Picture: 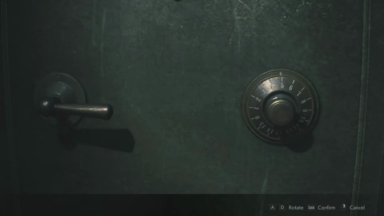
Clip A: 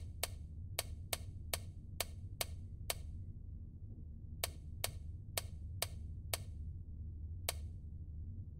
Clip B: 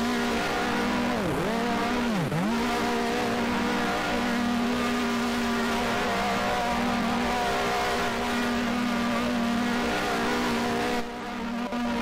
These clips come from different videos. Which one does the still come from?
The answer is A